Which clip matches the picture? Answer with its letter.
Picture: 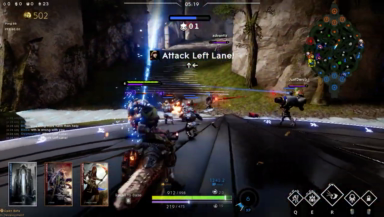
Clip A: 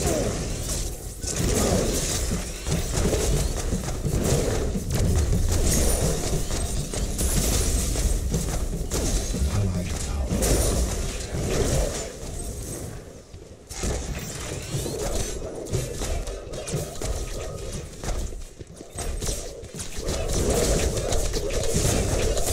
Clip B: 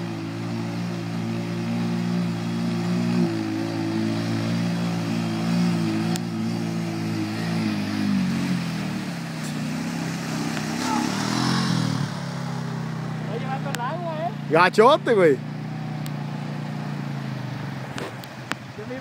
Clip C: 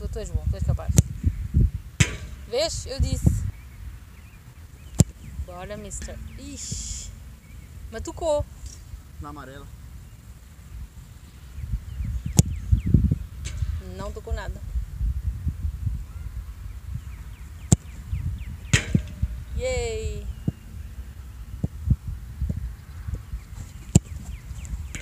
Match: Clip A